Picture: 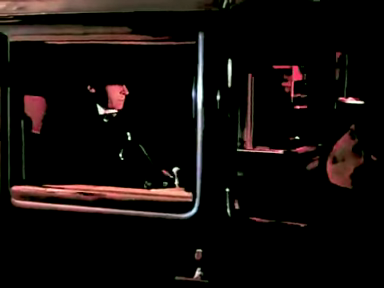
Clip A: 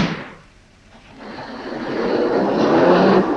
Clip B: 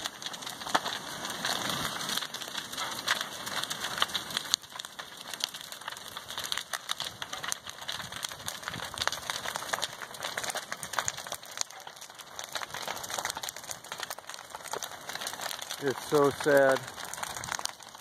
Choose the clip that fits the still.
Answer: A